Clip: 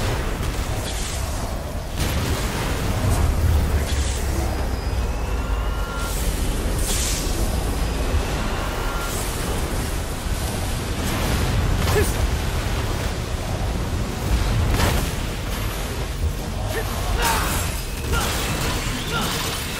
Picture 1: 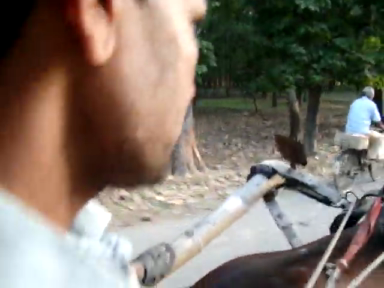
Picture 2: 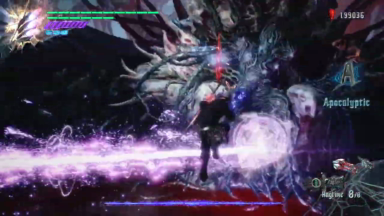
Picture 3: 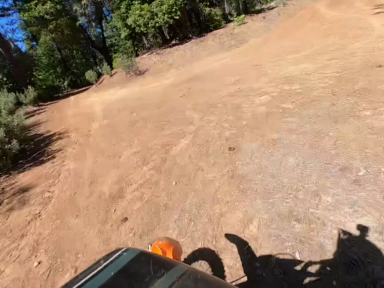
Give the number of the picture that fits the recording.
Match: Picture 2